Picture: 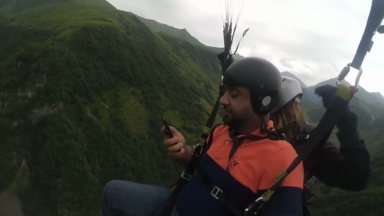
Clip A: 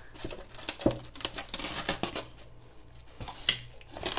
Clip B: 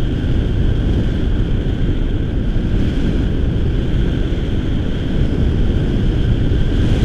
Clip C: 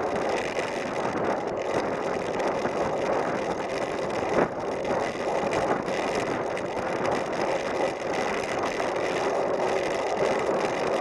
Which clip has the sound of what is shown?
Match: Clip B